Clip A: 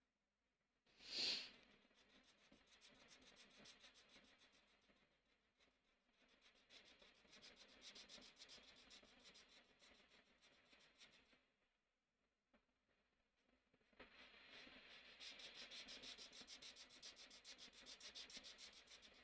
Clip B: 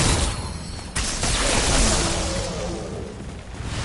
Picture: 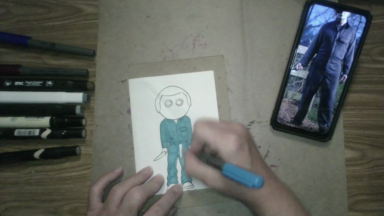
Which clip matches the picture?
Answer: A